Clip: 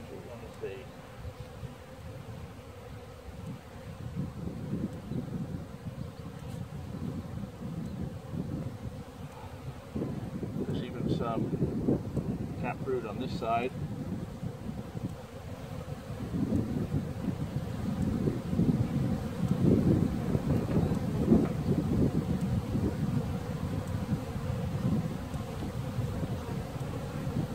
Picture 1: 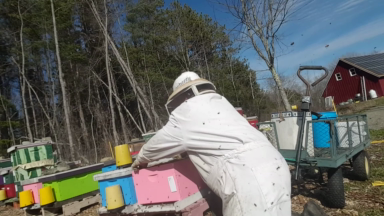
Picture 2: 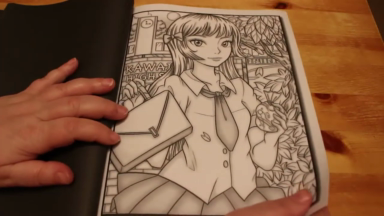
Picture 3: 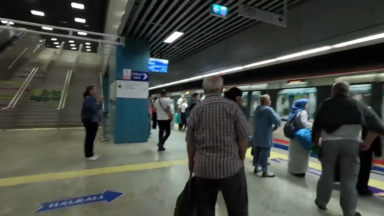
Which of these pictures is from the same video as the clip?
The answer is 1